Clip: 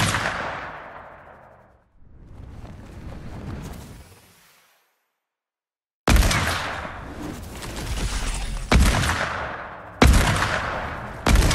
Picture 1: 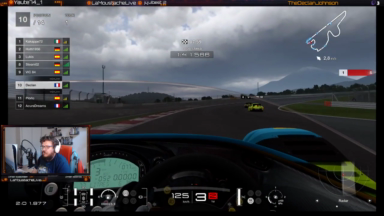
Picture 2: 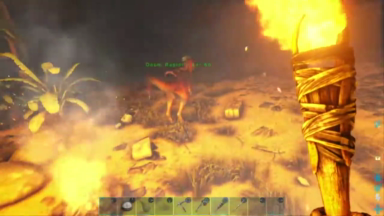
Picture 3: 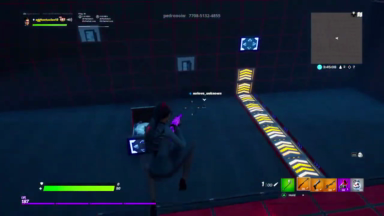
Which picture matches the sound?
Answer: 3